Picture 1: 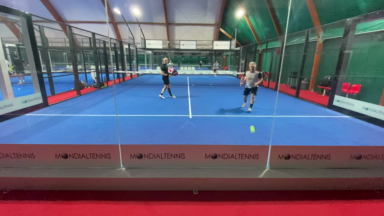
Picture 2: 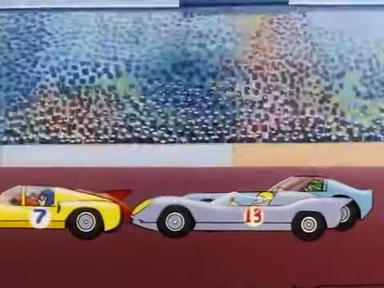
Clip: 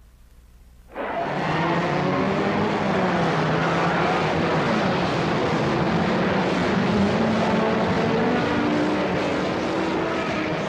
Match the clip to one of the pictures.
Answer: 2